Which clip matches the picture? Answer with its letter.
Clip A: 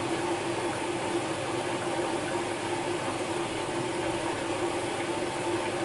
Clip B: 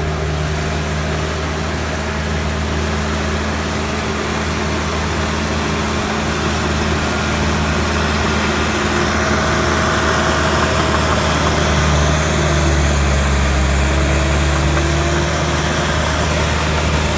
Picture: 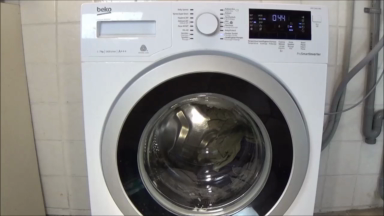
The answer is A